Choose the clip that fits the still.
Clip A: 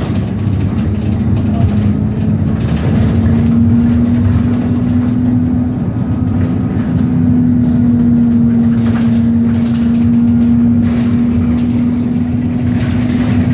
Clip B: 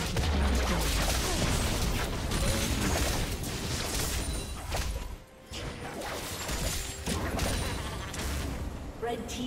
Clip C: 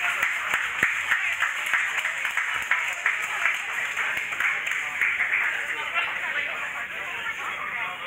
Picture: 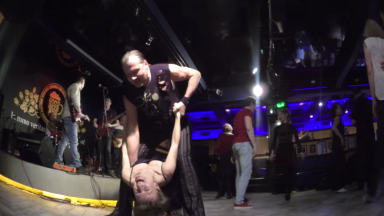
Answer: C